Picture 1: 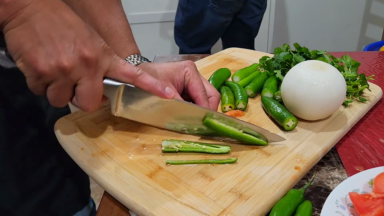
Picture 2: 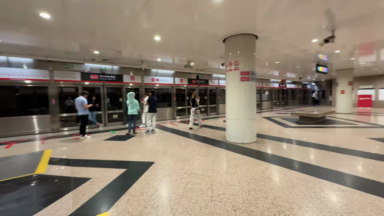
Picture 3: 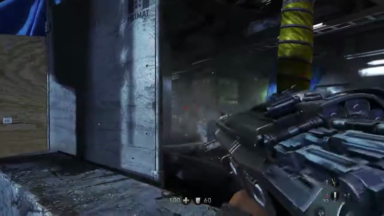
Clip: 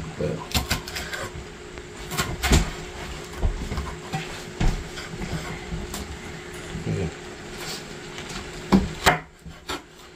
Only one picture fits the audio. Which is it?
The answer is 1